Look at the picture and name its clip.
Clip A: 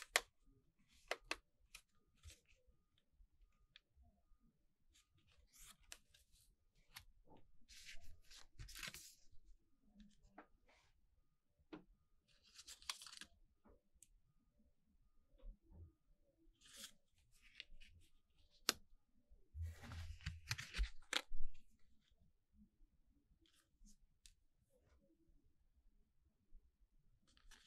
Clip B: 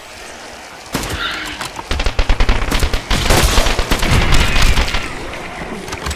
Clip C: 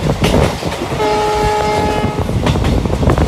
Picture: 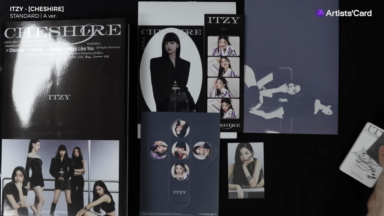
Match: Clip A